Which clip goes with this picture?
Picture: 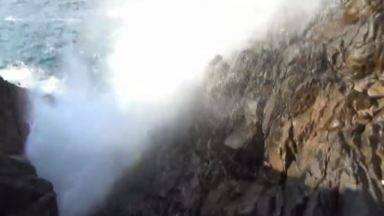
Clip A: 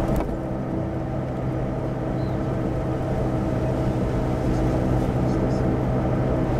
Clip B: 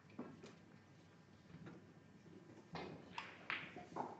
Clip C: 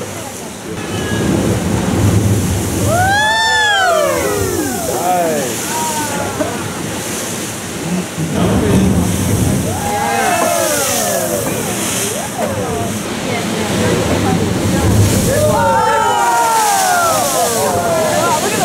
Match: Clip C